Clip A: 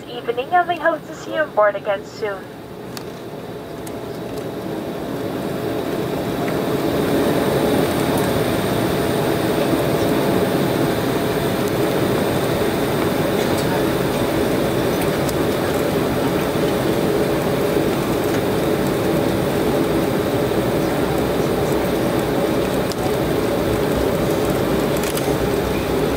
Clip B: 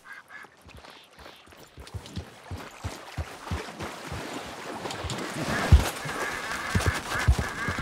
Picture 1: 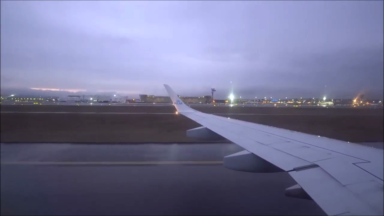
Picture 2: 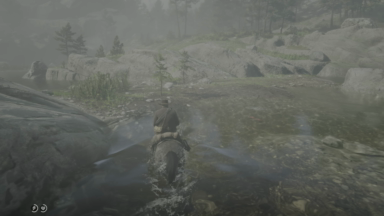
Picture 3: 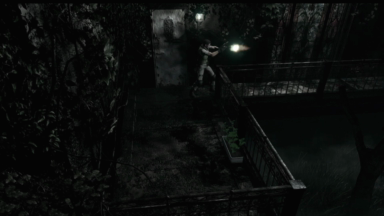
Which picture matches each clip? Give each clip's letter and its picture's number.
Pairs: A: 1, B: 2